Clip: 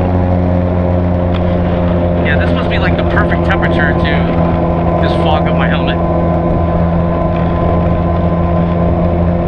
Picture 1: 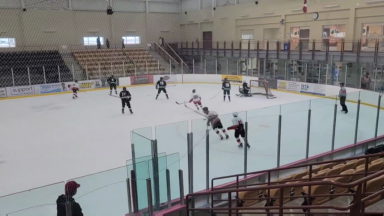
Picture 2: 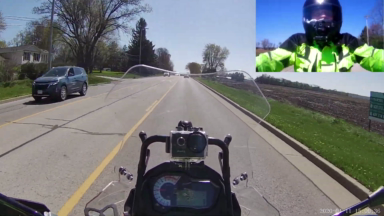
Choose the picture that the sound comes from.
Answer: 2